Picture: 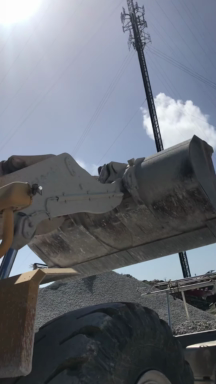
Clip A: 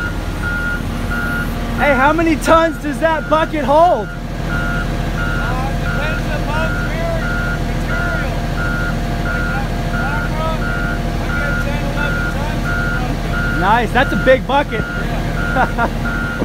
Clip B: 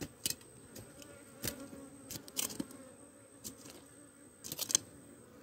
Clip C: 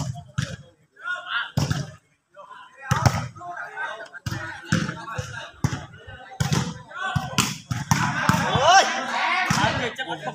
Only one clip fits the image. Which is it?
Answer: A